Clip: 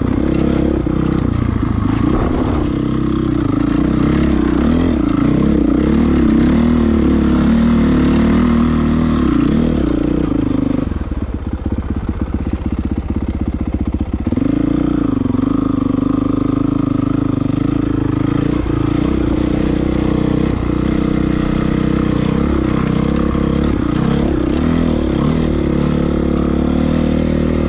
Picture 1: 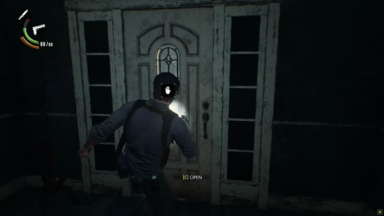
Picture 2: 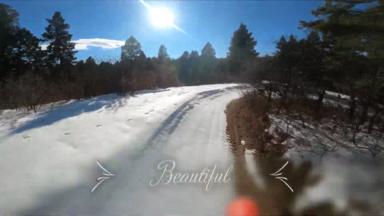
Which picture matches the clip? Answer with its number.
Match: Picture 2